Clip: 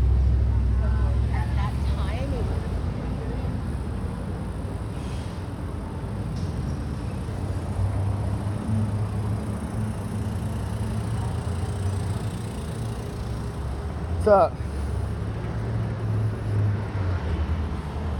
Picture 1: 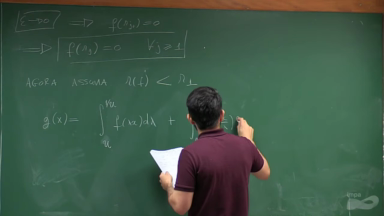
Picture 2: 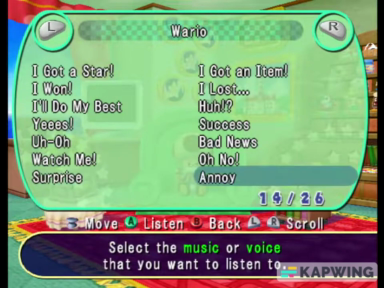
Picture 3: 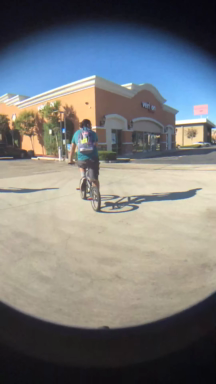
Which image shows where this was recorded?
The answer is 3